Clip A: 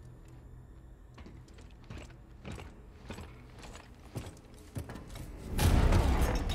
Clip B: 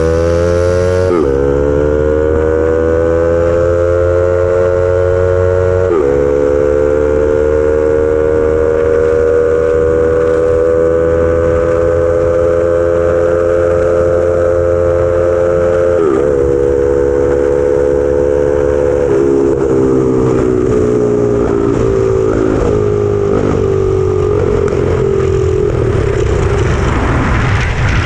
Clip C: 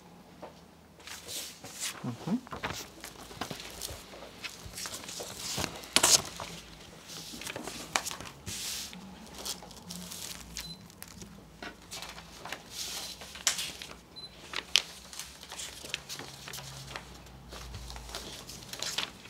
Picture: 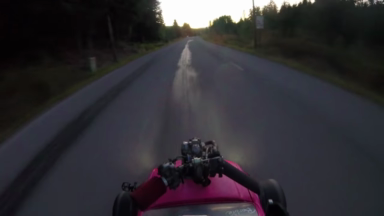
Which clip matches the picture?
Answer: B